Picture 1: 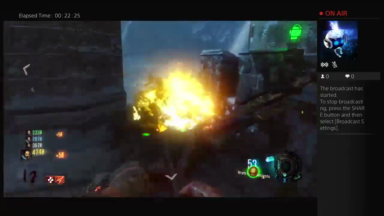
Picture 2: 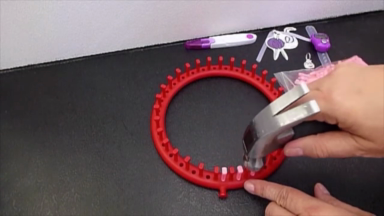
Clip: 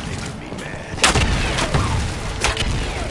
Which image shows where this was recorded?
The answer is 1